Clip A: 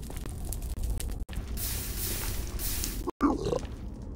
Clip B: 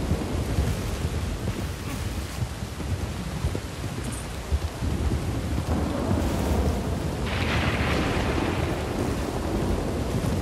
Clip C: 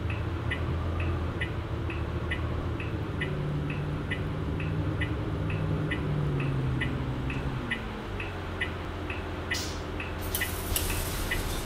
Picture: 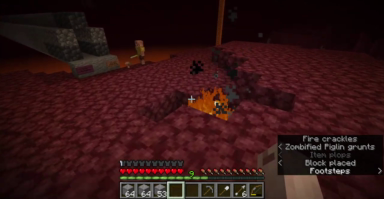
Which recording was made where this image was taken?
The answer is A